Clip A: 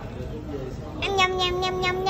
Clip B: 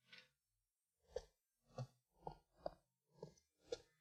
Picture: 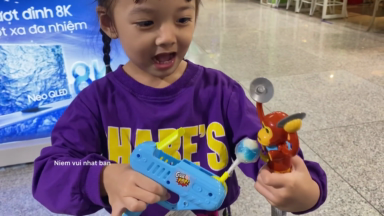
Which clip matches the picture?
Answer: A